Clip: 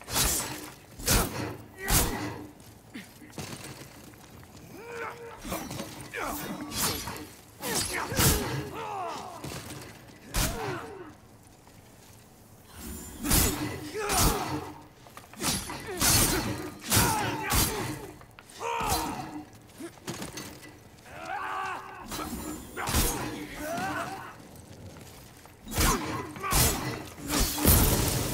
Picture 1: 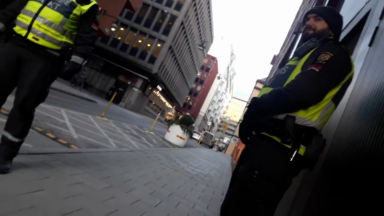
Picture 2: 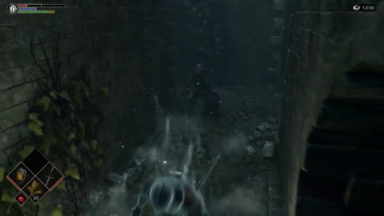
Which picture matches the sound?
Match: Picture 2